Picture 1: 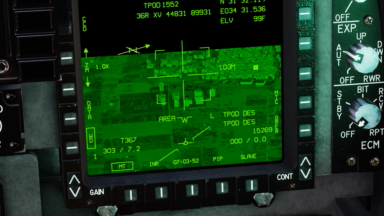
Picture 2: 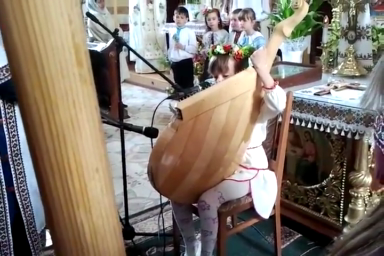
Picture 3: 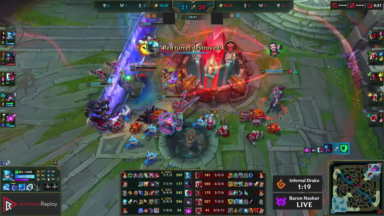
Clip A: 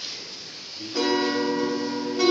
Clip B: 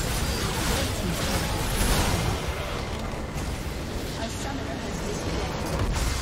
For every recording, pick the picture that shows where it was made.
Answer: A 2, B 3